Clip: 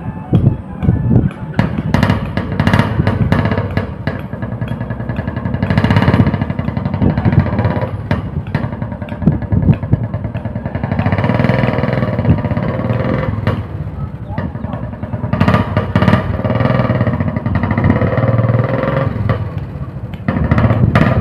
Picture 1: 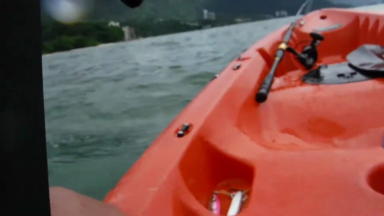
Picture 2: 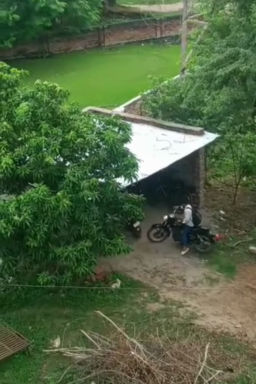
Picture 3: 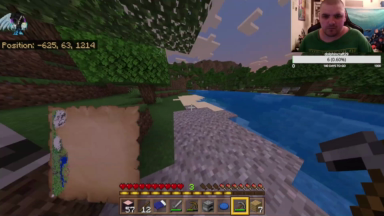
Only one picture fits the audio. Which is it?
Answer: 2